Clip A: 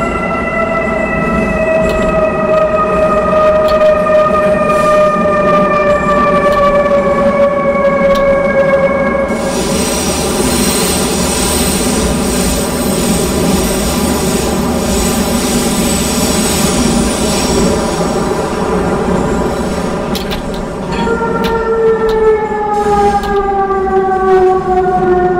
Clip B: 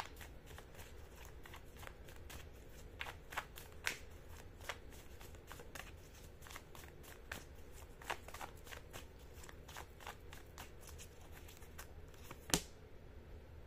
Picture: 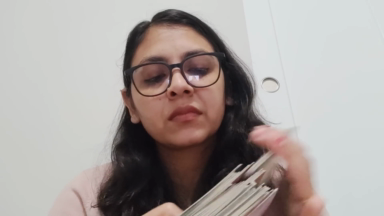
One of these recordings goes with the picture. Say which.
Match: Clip B